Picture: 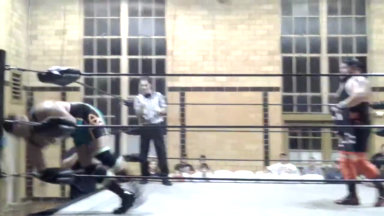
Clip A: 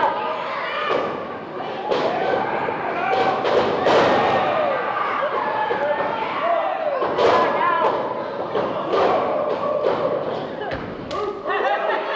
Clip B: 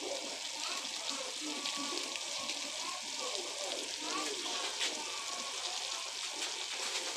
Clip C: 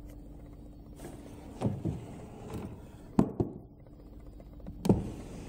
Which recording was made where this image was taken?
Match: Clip A